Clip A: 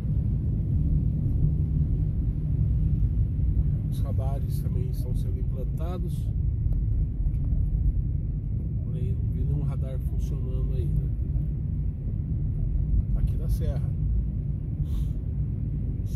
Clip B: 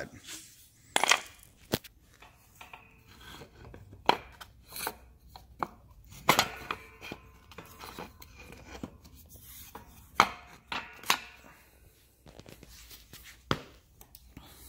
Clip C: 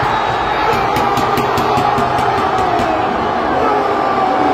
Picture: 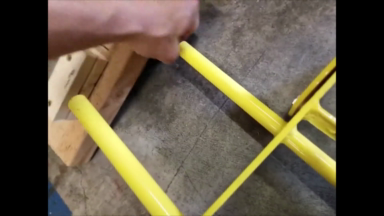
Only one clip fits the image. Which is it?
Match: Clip B